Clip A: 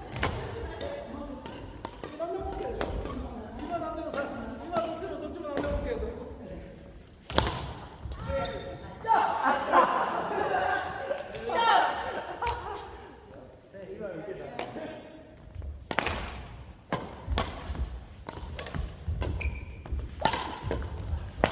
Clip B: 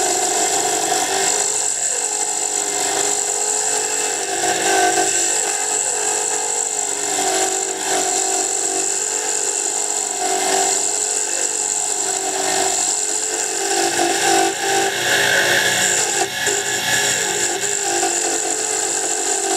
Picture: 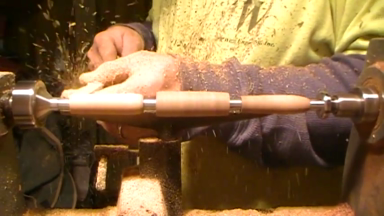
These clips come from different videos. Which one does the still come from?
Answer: B